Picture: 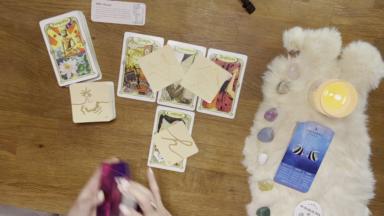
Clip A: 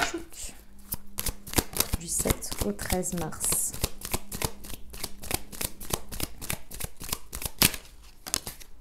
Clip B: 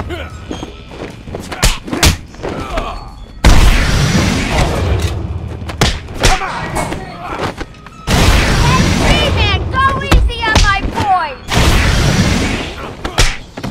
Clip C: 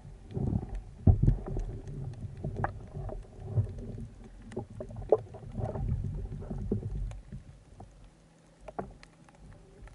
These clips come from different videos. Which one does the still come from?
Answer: A